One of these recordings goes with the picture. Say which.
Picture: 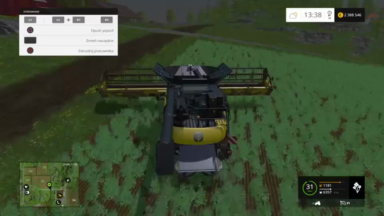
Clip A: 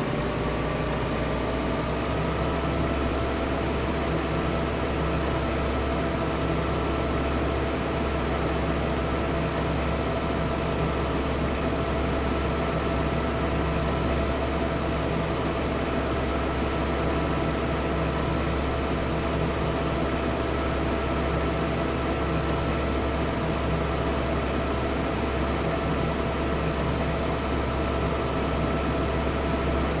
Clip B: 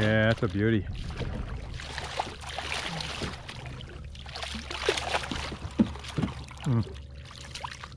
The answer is A